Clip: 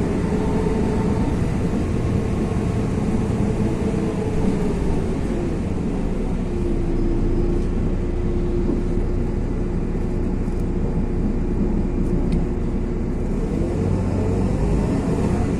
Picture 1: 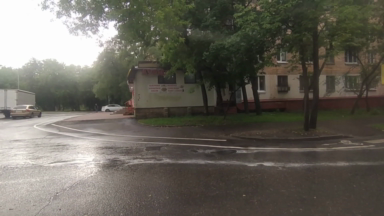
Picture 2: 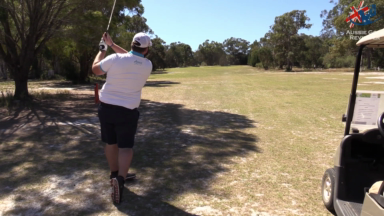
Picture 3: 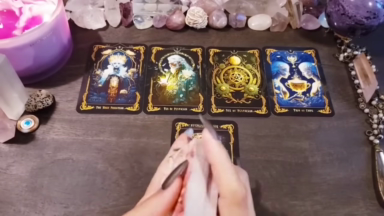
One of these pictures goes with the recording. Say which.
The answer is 1